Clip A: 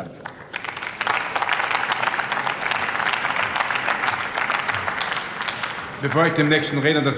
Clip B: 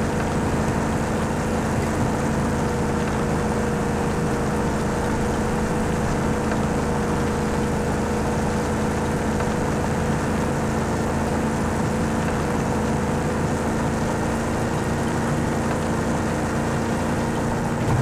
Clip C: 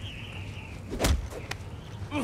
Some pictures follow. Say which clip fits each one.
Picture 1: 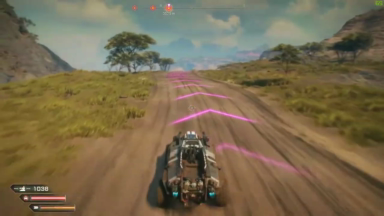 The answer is B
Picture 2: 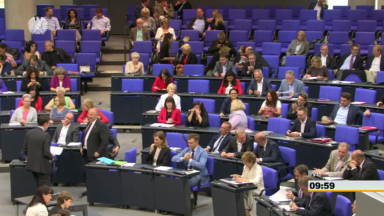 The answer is A